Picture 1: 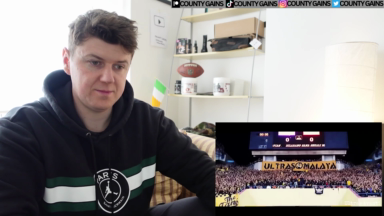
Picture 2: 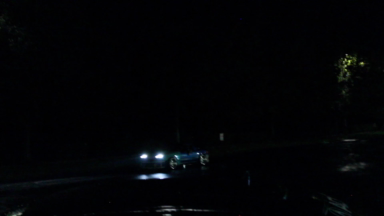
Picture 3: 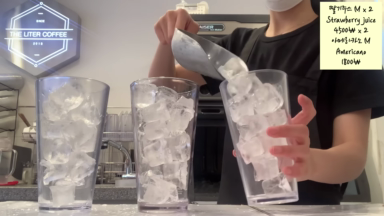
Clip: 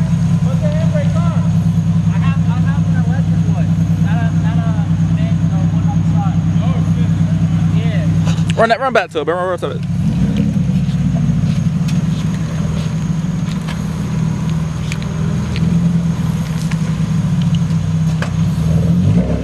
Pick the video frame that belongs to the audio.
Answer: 2